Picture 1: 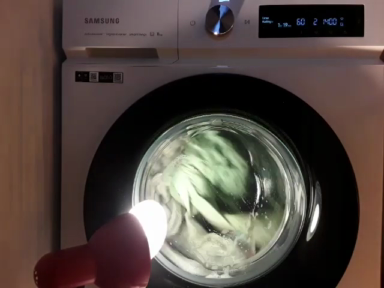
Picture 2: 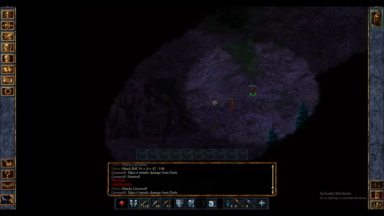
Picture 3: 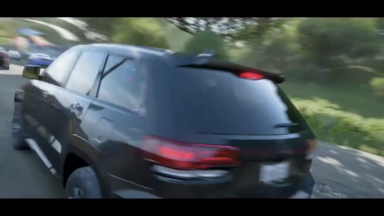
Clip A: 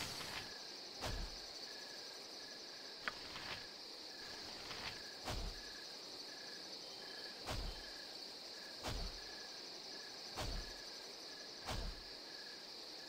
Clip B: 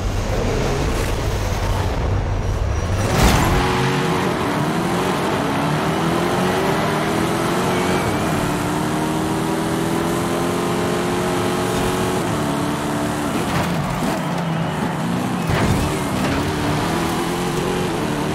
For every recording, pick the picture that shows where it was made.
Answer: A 2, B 3